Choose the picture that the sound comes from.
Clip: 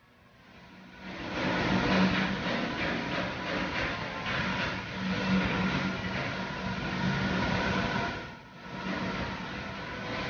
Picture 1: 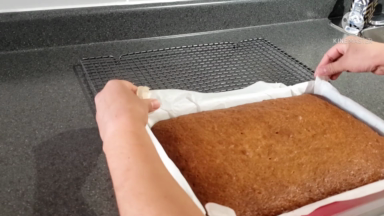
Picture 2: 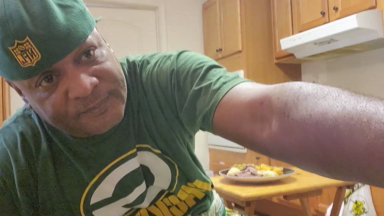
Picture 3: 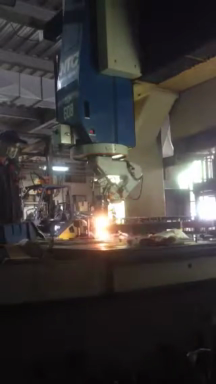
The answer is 3